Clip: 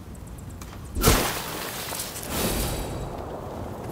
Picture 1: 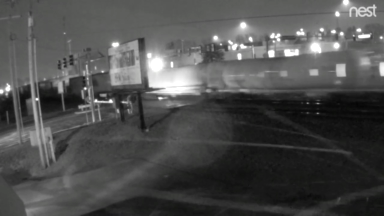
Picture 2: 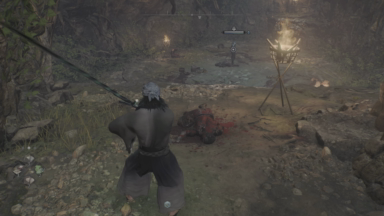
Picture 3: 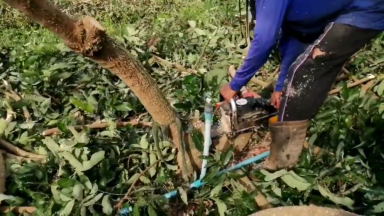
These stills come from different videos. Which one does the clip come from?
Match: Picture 2